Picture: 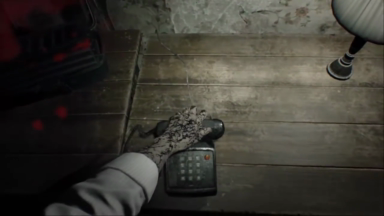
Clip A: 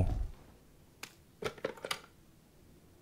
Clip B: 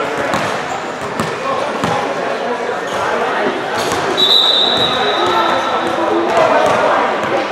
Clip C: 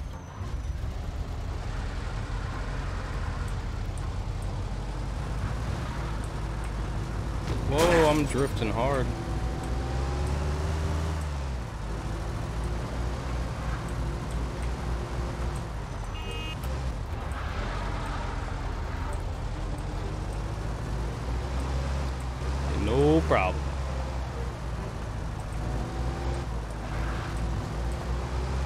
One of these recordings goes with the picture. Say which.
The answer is A